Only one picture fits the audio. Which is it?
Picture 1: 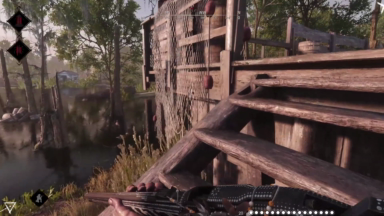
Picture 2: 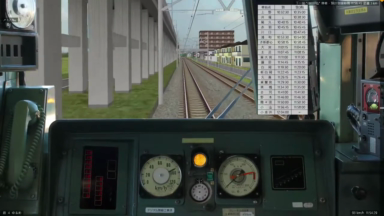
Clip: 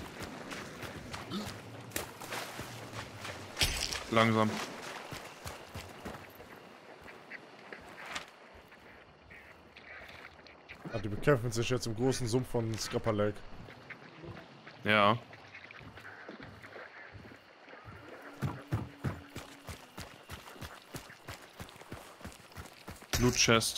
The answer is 1